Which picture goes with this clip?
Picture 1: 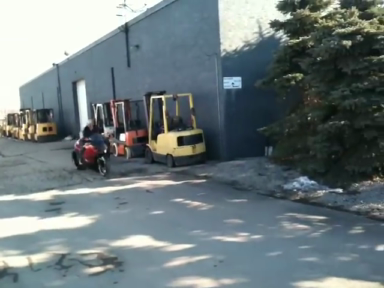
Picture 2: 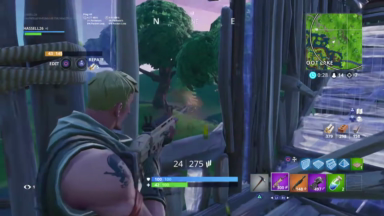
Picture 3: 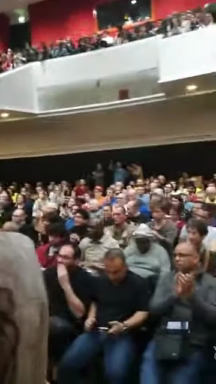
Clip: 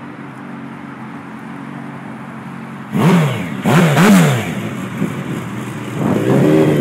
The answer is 1